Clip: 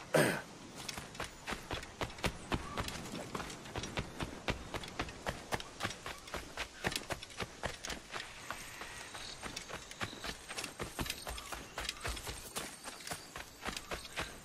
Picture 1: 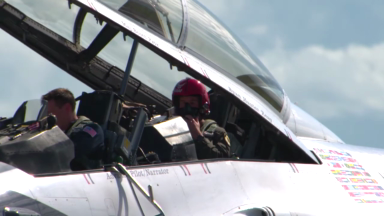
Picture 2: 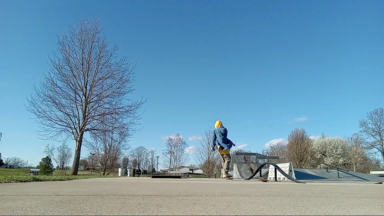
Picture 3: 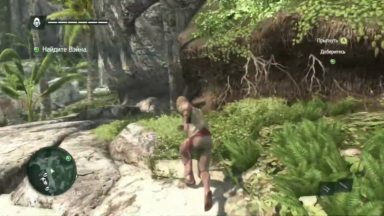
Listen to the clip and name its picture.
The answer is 3